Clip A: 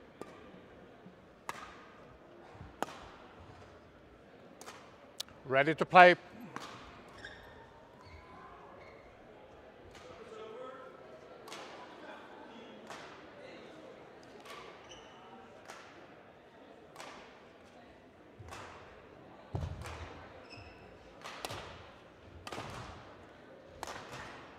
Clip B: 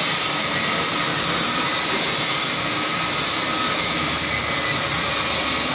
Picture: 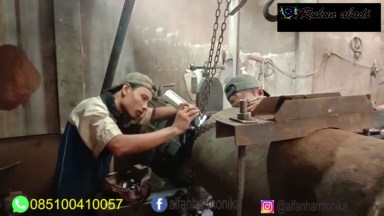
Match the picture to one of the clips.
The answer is B